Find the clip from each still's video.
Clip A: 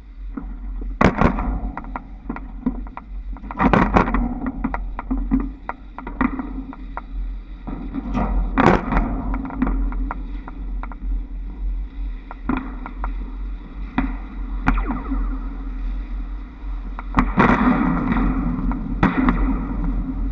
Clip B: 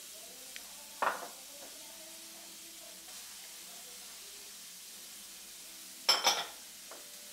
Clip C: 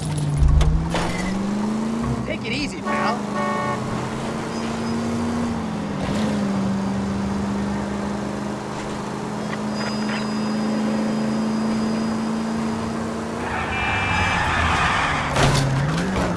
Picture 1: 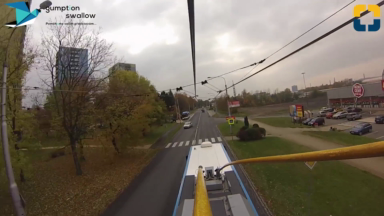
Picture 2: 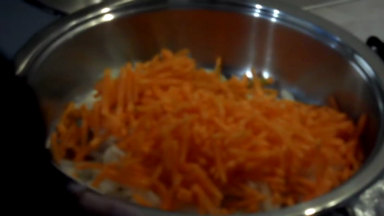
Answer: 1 A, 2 B